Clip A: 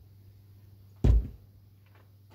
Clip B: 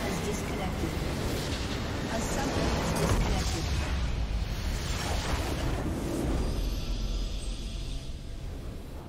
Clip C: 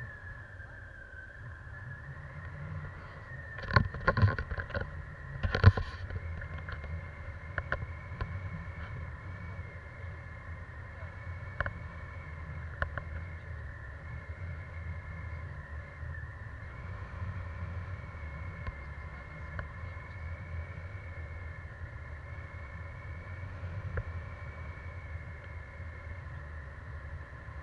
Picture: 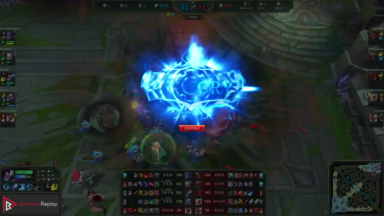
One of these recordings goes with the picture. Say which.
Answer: B